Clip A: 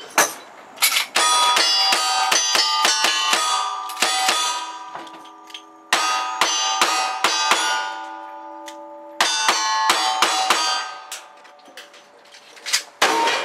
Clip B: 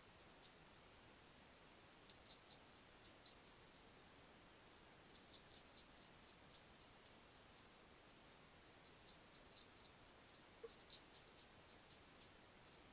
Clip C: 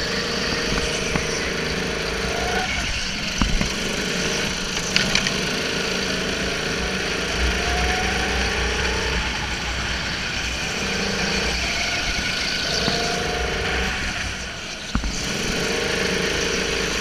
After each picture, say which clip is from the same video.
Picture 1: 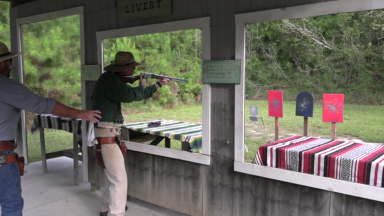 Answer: A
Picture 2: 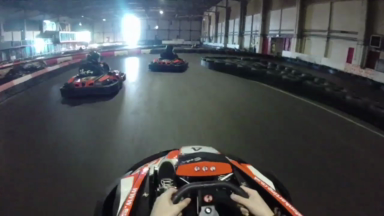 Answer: C